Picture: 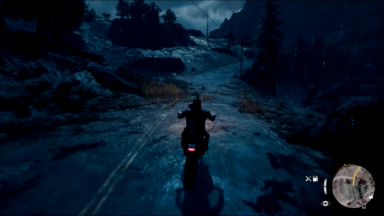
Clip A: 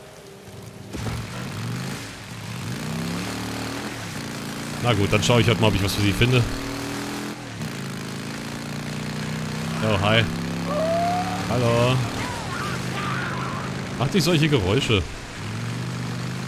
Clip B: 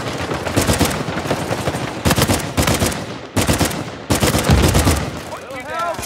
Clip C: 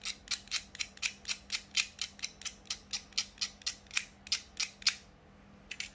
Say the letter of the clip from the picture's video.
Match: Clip A